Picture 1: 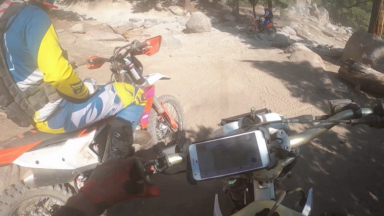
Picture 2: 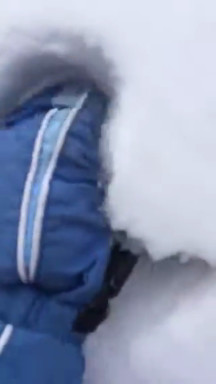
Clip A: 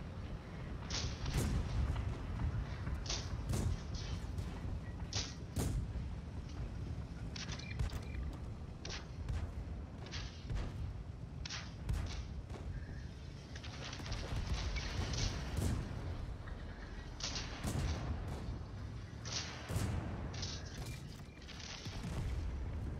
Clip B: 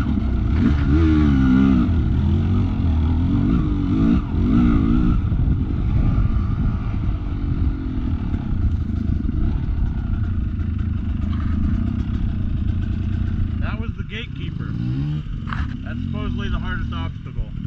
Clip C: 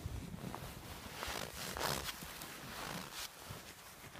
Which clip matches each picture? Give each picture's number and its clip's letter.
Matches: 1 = B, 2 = C